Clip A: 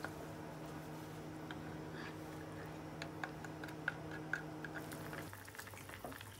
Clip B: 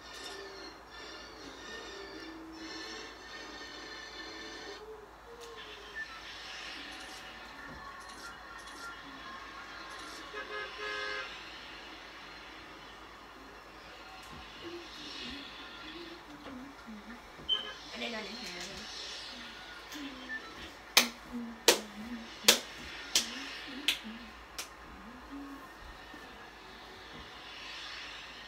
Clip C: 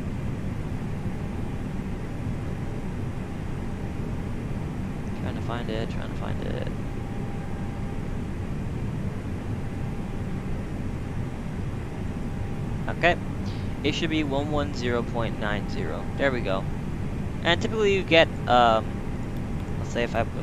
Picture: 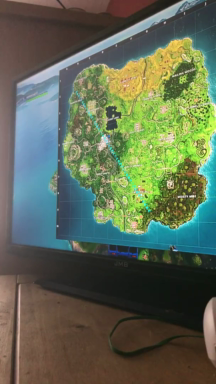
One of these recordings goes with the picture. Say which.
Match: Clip B